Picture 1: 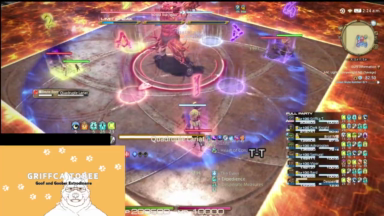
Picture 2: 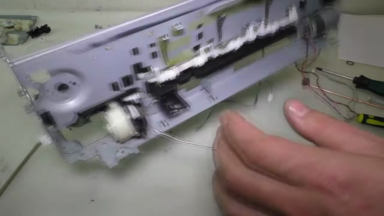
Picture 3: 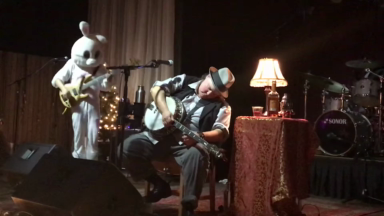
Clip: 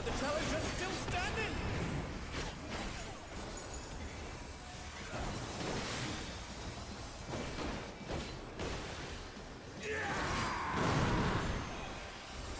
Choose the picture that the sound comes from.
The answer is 1